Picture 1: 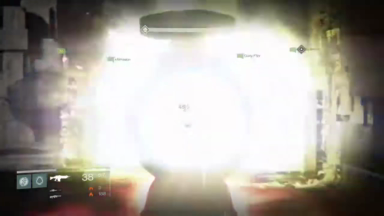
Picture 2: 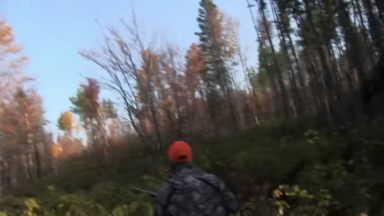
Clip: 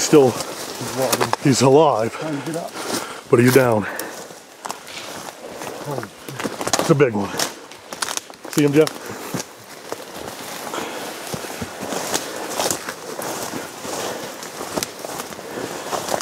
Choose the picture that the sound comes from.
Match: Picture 2